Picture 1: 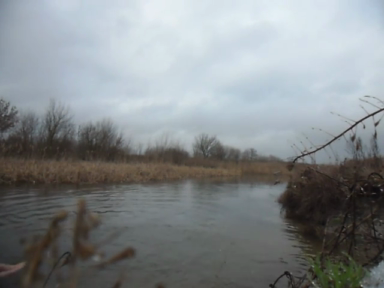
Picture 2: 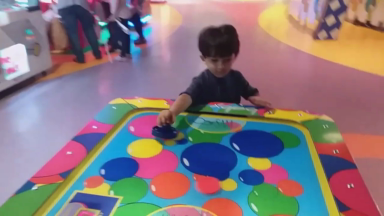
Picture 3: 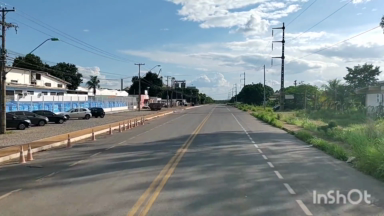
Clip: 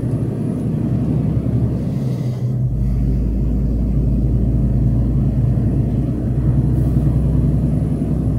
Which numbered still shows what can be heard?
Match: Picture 3